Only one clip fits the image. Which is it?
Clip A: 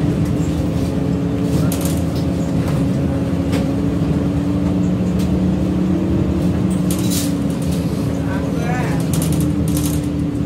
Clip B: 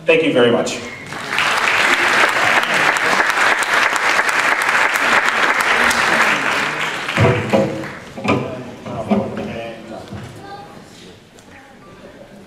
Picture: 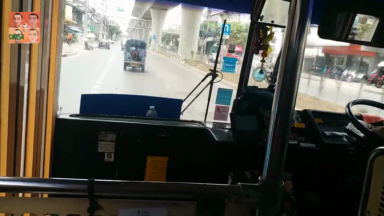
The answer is A